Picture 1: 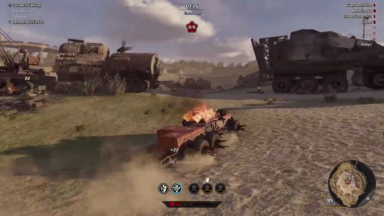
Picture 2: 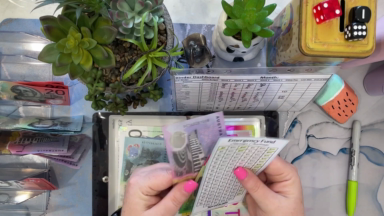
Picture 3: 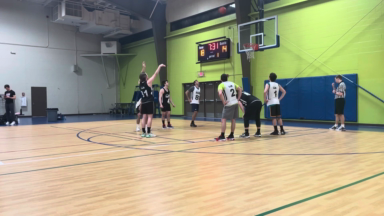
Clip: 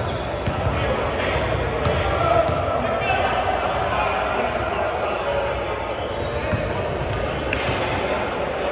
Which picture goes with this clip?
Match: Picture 3